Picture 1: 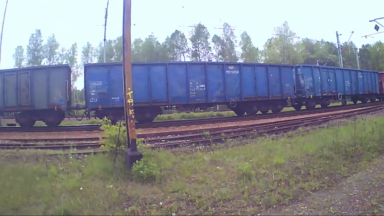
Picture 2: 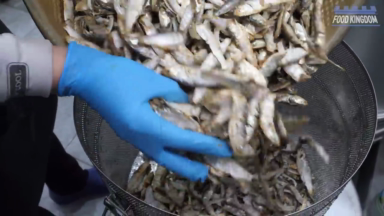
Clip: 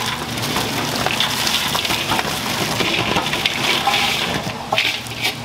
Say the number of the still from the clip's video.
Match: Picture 2